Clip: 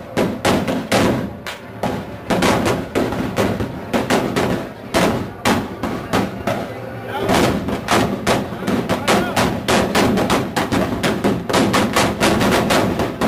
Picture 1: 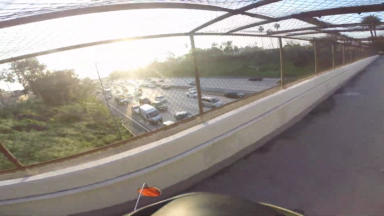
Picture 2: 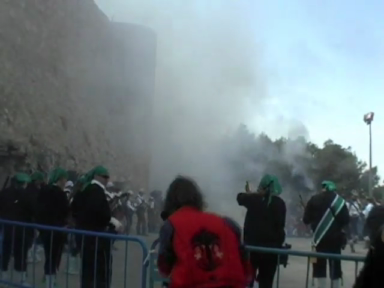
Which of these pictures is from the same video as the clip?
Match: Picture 2